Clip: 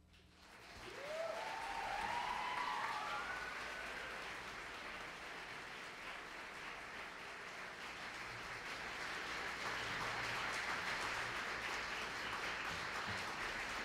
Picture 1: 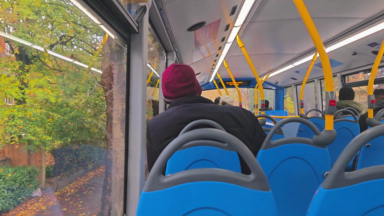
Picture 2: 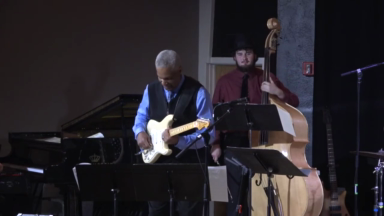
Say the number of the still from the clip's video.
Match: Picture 2